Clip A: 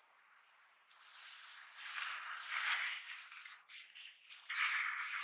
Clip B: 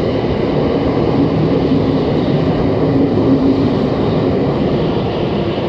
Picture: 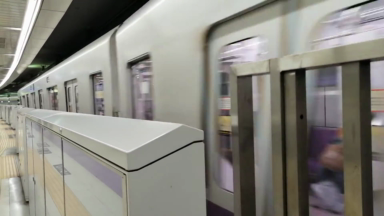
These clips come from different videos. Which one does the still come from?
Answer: B